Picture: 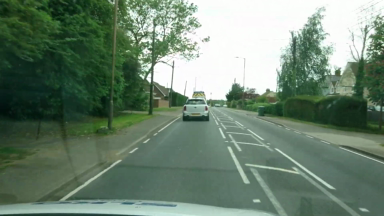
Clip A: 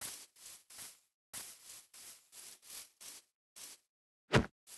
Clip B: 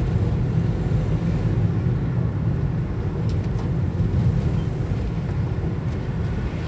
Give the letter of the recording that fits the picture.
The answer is B